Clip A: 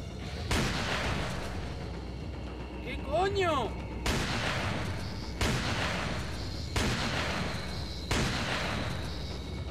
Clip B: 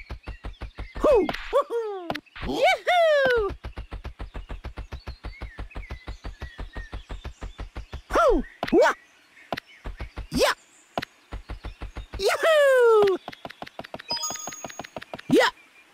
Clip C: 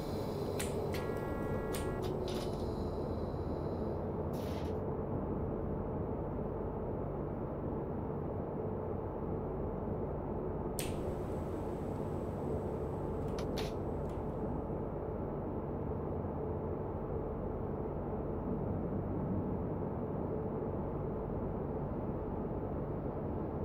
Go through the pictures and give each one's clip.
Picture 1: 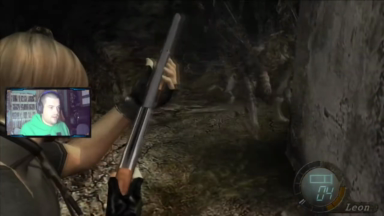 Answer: A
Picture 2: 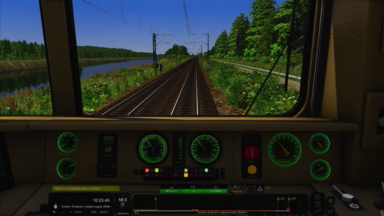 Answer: C